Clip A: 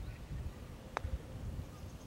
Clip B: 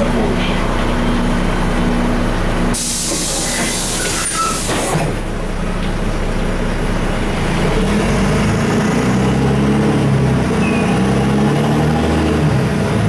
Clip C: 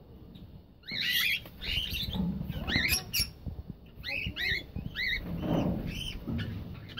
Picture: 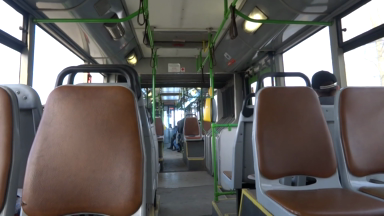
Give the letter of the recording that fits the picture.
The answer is B